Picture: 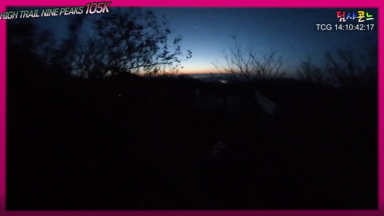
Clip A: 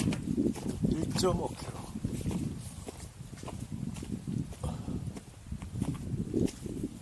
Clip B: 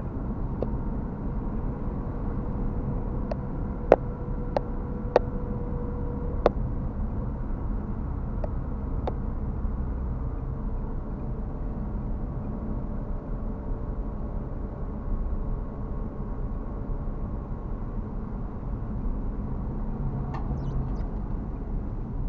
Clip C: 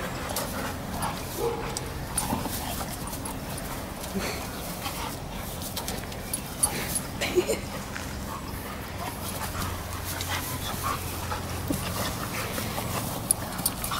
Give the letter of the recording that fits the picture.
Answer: A